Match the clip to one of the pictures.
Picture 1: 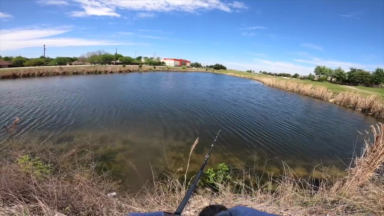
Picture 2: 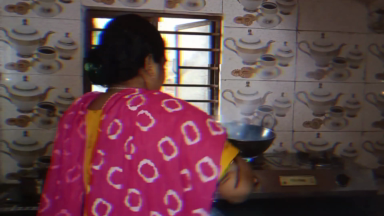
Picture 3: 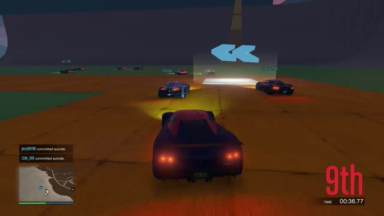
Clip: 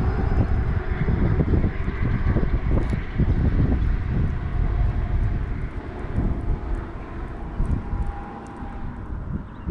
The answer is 1